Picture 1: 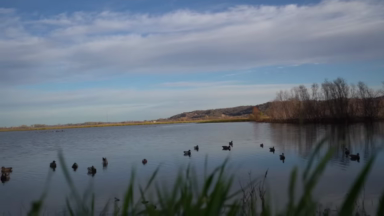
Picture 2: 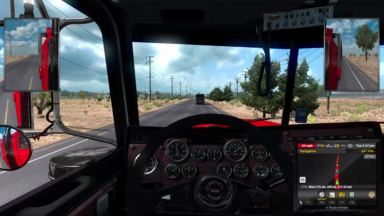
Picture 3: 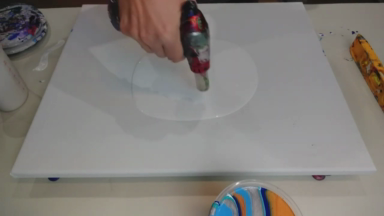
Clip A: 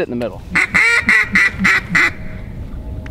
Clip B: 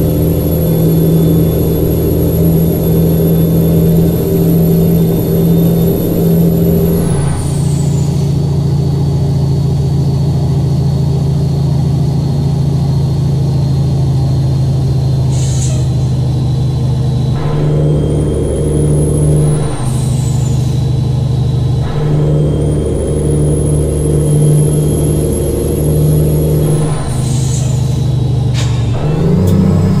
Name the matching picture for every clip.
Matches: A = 1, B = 2